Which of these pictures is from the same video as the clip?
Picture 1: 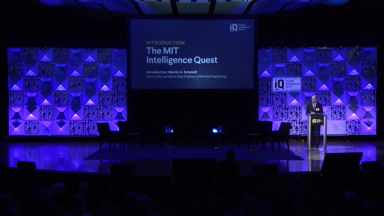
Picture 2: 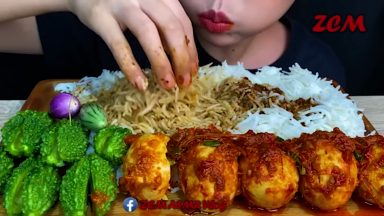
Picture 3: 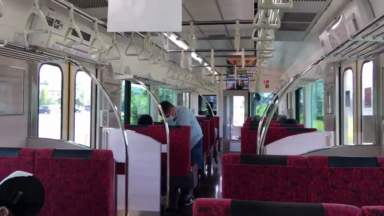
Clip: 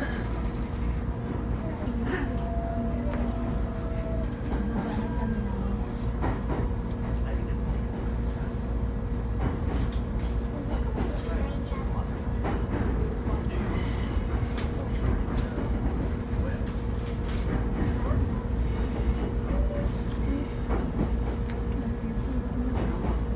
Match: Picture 3